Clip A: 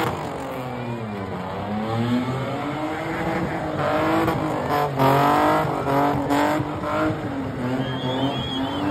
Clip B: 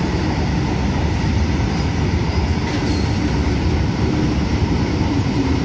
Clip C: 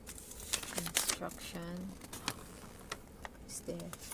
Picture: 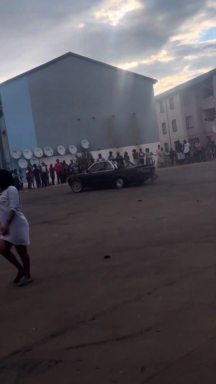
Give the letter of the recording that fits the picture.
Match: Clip A